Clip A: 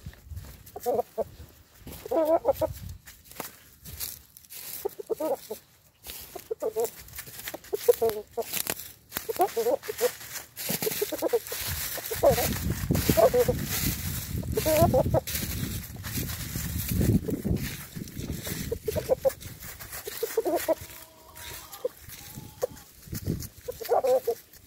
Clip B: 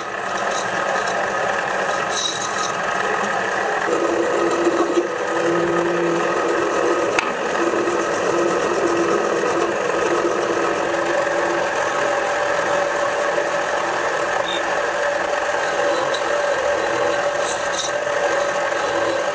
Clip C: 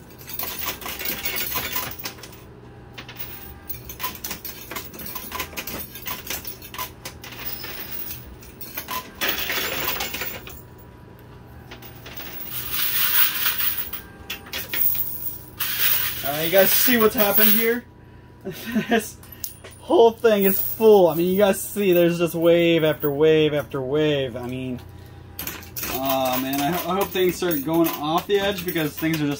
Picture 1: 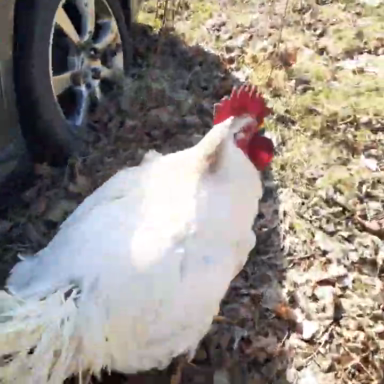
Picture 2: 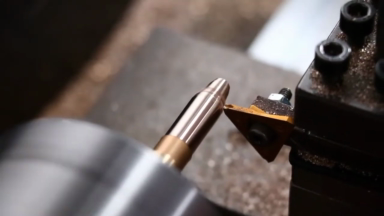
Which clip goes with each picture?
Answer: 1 A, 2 B